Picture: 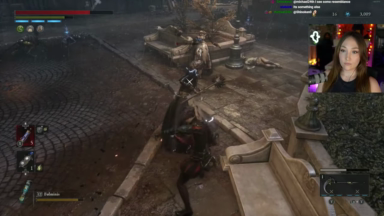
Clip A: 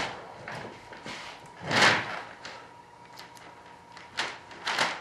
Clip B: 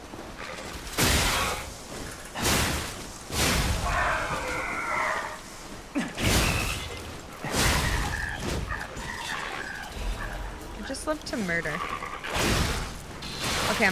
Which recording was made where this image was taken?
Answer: B